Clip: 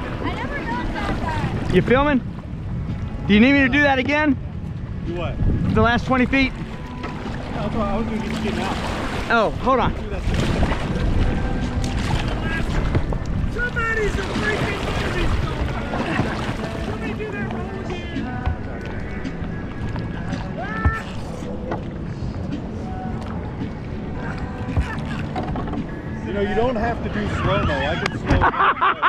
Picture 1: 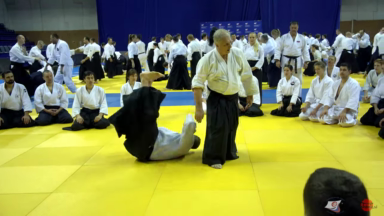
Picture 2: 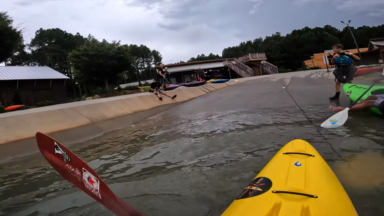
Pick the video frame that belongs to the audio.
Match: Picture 2